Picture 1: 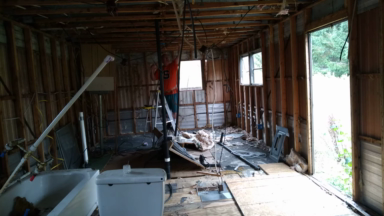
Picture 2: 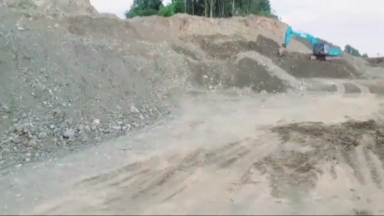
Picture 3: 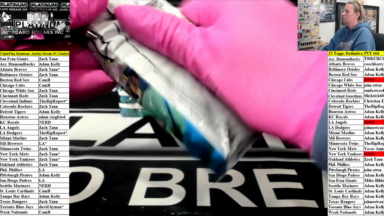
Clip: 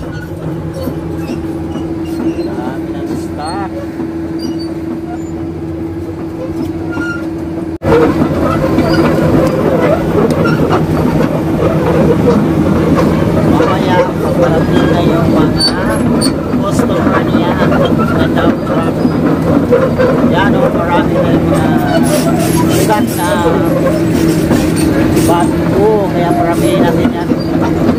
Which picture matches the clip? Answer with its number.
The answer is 2